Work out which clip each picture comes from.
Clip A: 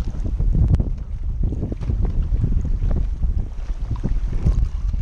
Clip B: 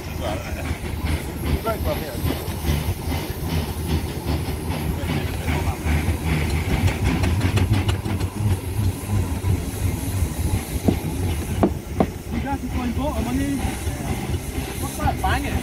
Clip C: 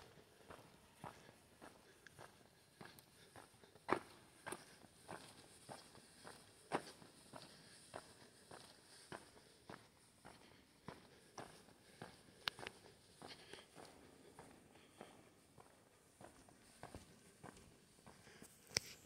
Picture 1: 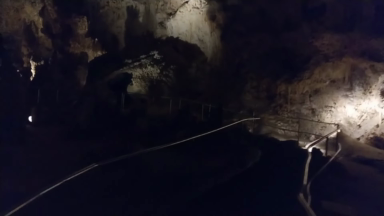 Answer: C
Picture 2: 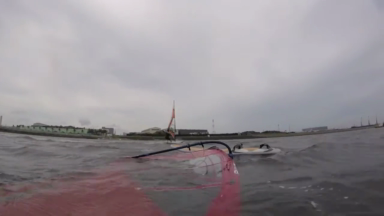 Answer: A